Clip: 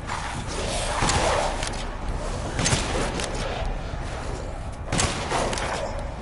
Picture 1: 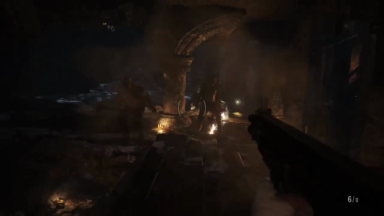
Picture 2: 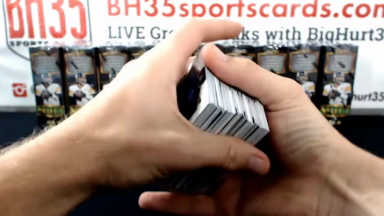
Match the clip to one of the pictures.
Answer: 1